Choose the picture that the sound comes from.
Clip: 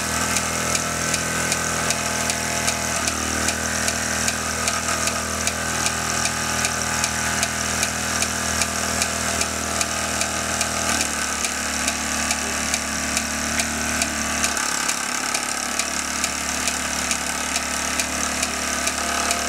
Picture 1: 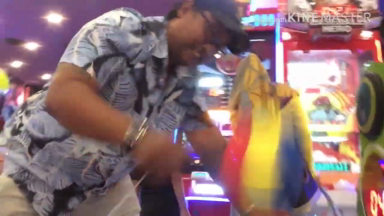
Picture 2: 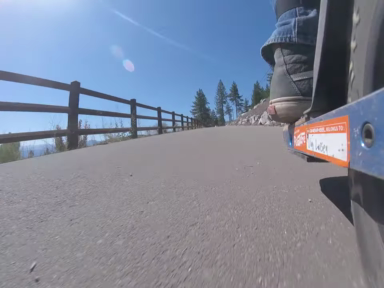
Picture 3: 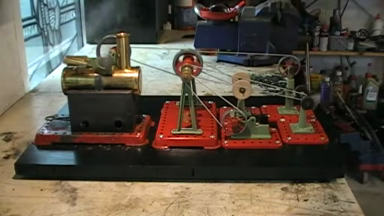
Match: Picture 3